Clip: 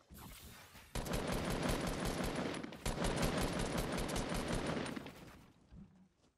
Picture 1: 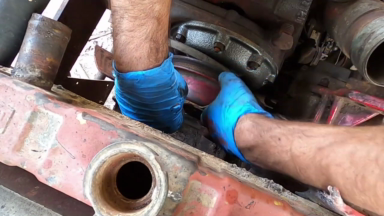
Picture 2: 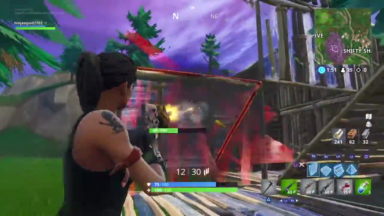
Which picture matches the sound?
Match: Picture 2